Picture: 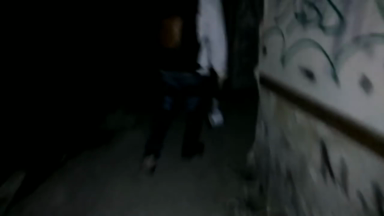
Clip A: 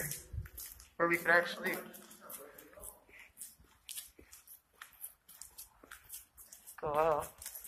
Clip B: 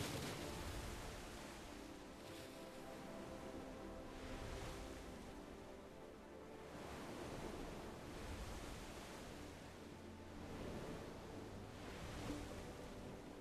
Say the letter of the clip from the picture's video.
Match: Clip A